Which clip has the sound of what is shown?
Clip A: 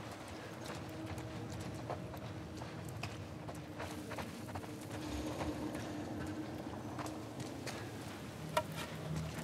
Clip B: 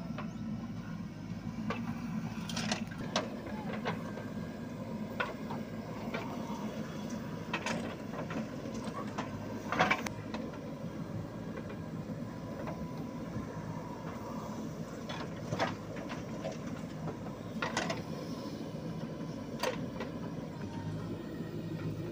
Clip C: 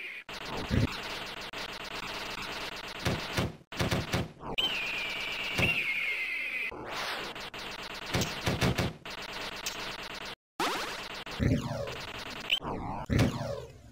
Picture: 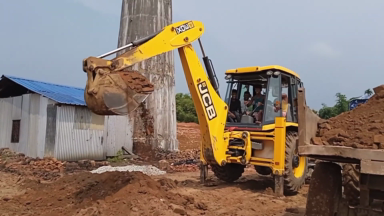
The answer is B